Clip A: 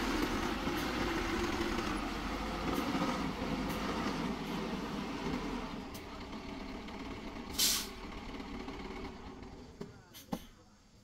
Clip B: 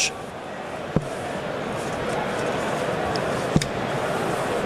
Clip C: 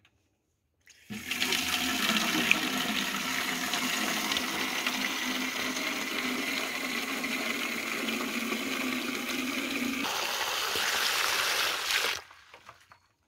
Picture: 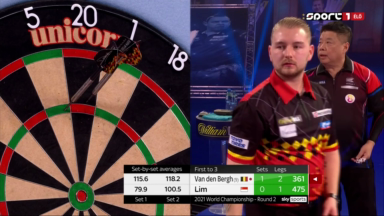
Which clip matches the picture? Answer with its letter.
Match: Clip B